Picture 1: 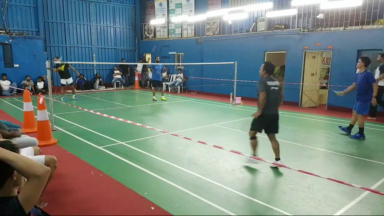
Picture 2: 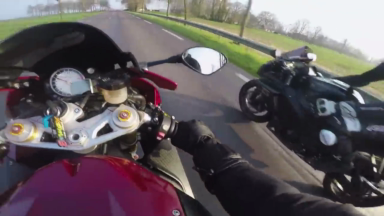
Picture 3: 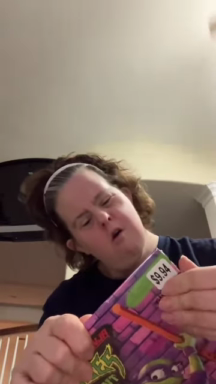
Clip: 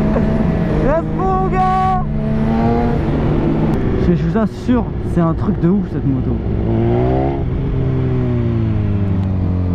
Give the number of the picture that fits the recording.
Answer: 2